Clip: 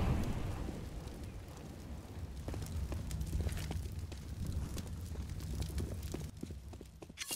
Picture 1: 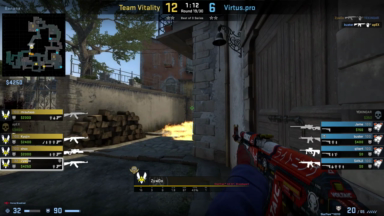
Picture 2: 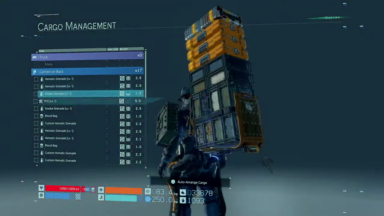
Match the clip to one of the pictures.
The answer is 1